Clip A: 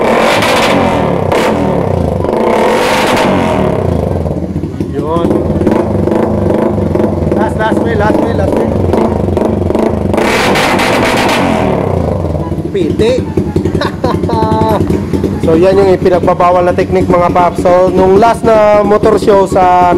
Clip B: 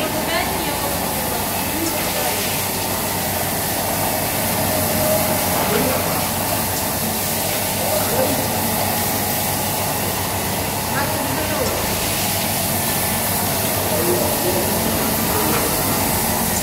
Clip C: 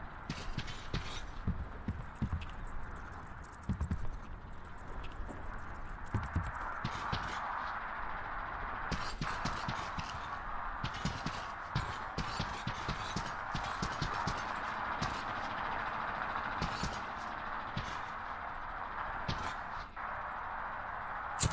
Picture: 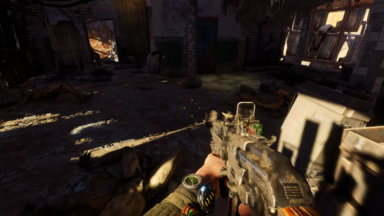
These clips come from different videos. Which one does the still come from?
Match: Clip C